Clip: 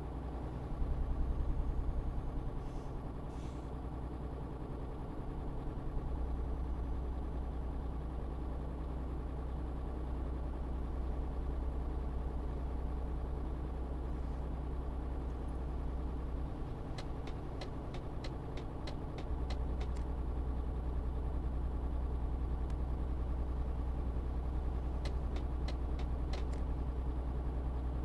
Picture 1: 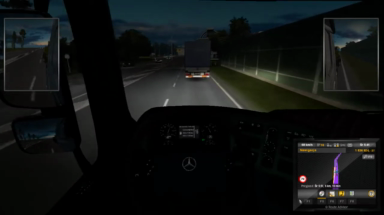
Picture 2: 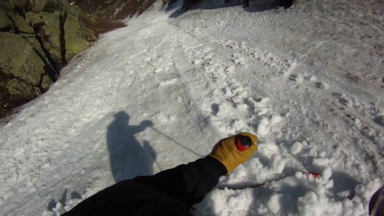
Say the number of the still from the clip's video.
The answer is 1